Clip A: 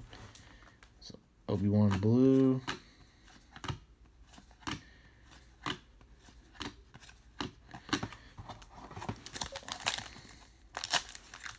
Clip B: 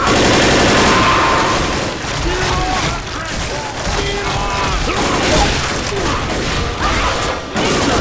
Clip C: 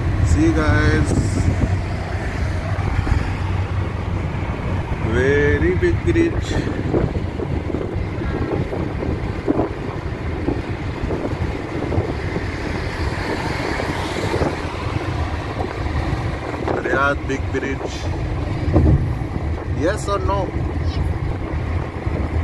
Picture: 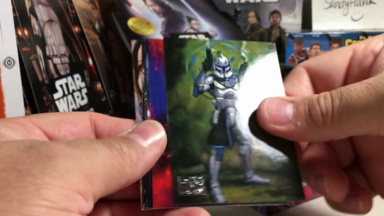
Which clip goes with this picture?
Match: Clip A